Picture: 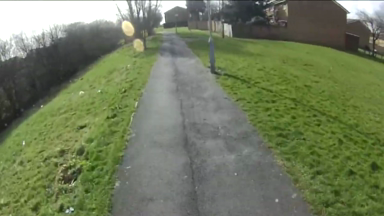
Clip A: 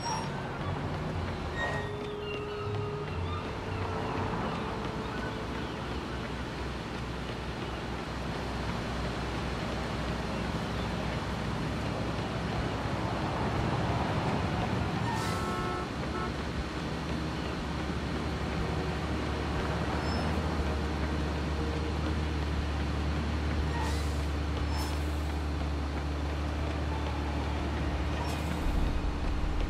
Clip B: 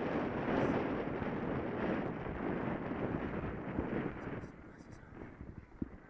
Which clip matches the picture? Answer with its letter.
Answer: B